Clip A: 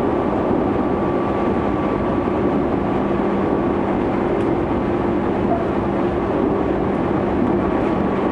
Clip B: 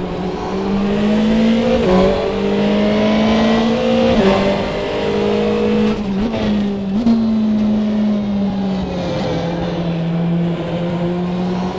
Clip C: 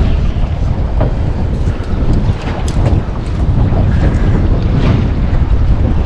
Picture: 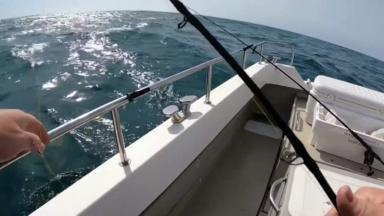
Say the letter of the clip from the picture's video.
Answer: C